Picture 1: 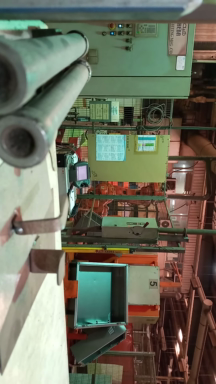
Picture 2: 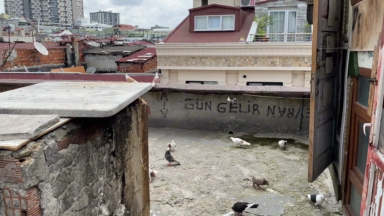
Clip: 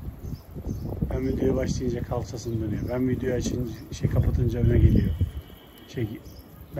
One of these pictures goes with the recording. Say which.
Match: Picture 2